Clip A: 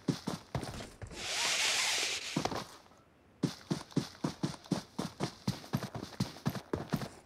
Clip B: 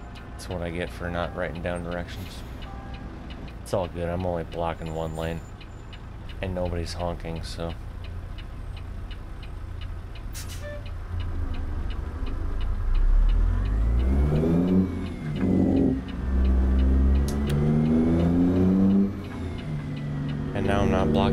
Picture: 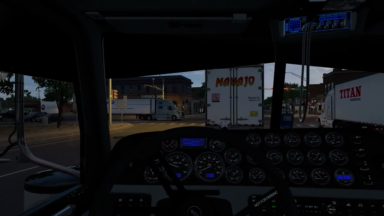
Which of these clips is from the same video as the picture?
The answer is B